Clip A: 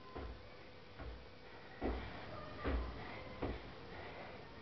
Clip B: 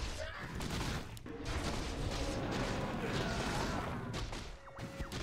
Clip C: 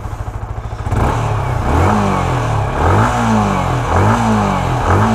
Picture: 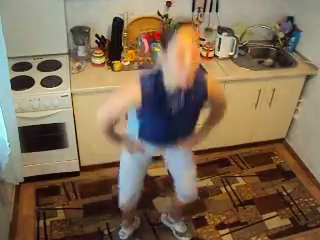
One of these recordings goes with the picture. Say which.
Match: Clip A